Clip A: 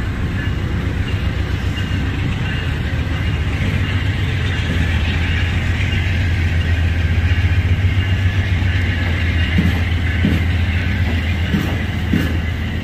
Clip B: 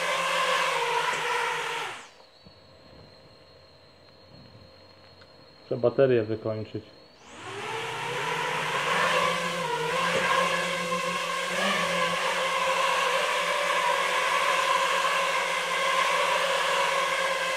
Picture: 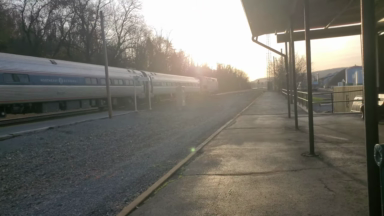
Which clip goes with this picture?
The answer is A